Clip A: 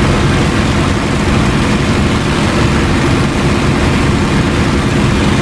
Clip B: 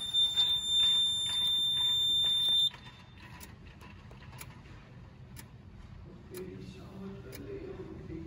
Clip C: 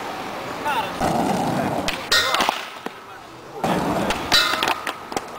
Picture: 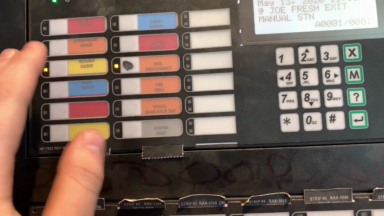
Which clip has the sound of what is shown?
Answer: B